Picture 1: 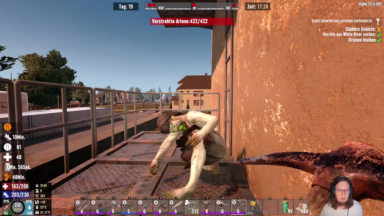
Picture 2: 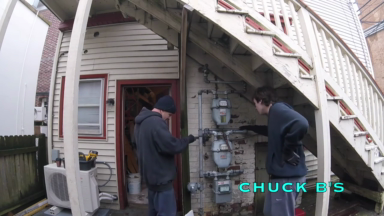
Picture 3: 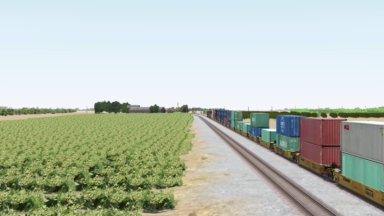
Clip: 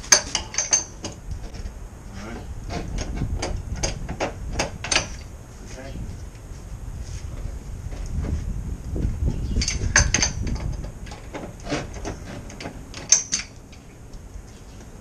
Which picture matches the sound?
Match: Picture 2